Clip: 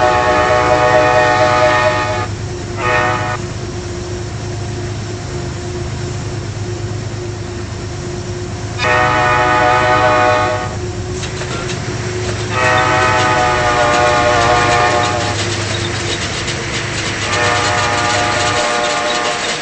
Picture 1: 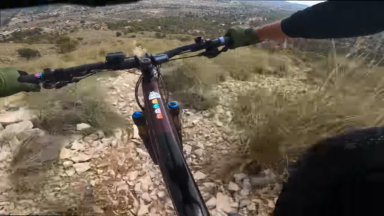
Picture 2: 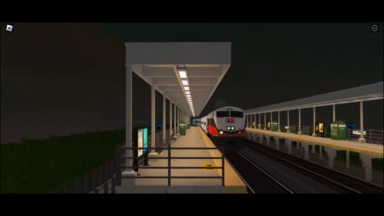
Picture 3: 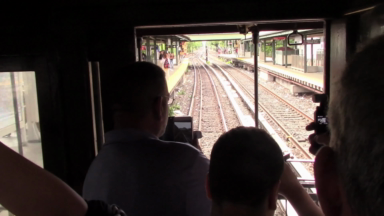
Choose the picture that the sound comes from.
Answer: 2